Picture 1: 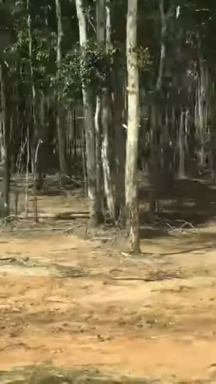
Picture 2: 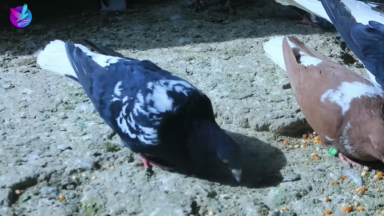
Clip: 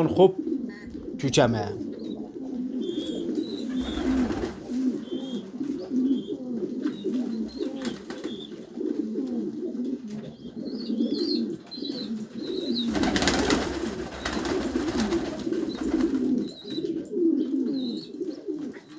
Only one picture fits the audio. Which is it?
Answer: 2